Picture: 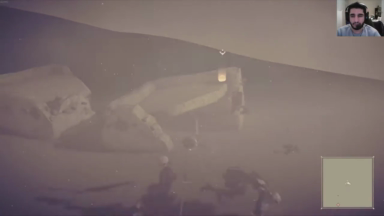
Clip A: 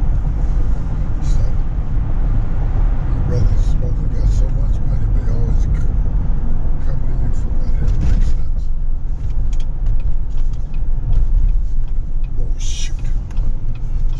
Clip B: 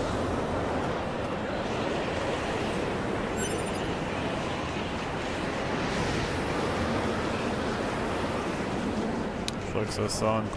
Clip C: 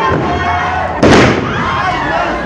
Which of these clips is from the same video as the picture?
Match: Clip B